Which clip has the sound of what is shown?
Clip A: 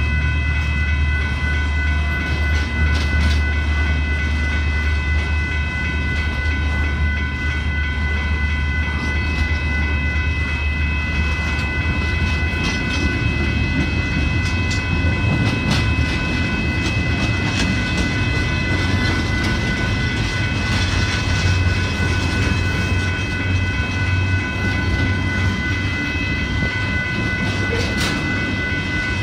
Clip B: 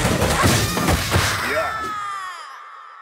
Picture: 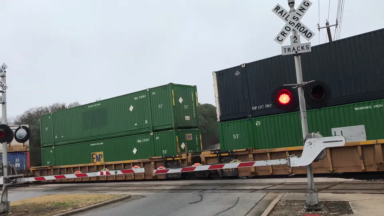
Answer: A